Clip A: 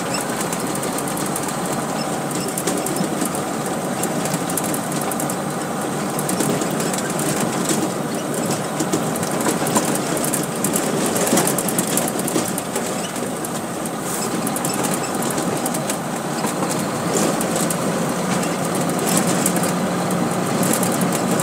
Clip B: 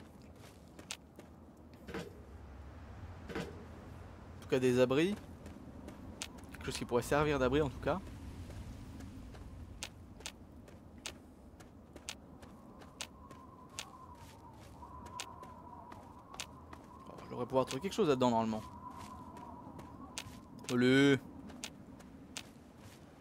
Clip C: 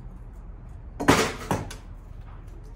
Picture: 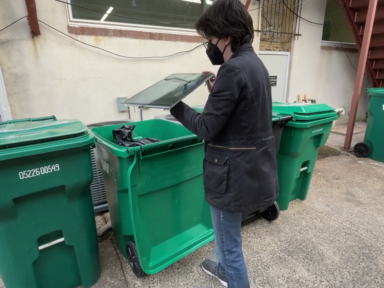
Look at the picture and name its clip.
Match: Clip C